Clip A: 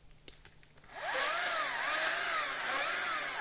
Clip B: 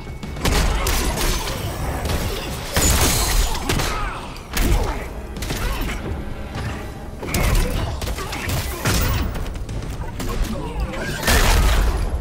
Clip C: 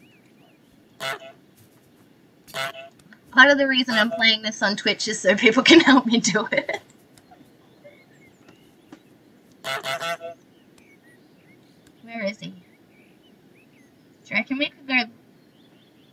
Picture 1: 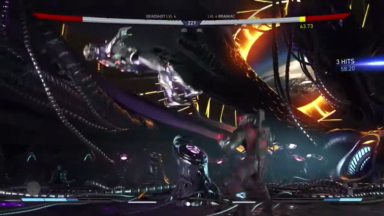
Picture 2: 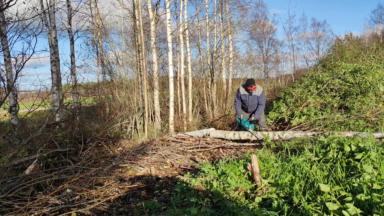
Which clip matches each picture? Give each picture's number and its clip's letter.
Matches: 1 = B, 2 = A